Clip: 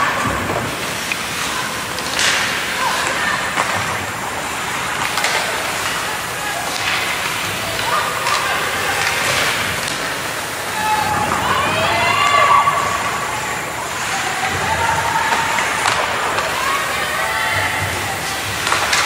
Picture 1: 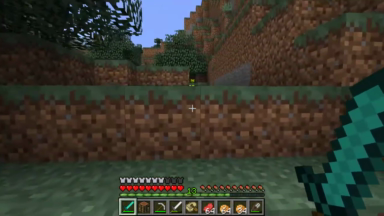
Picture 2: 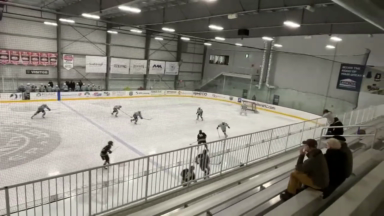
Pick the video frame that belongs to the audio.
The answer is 2